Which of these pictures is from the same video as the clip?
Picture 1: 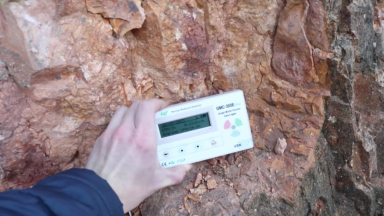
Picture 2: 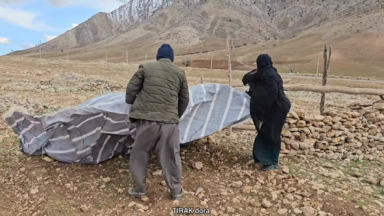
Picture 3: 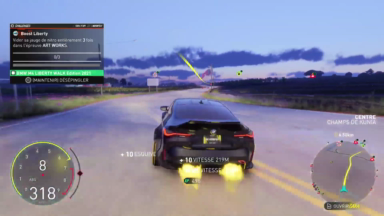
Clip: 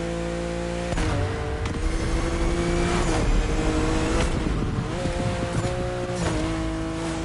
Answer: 3